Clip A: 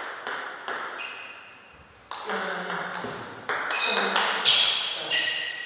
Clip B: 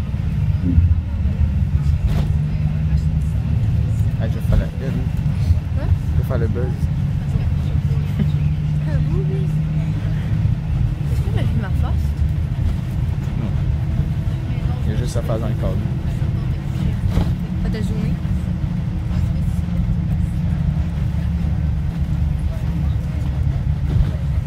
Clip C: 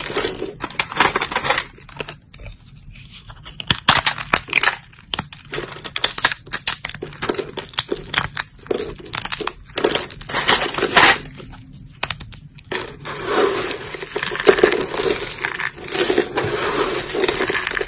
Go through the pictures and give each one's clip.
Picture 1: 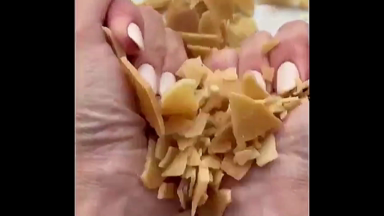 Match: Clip C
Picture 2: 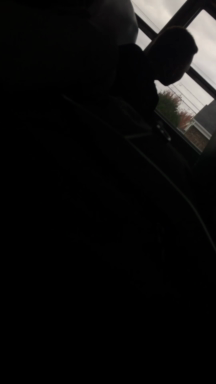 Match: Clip B